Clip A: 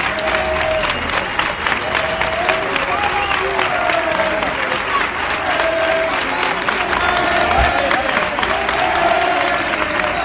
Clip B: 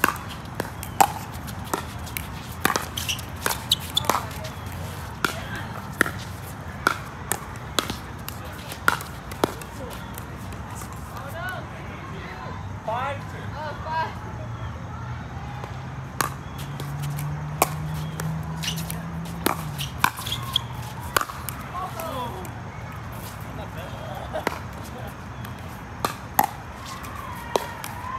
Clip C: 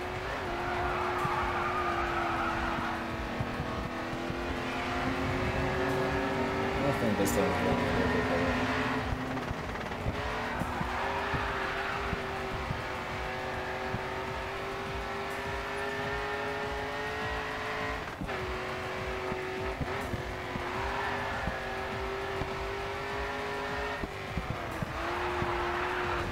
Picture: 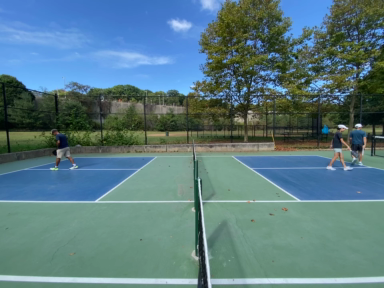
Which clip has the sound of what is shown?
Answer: B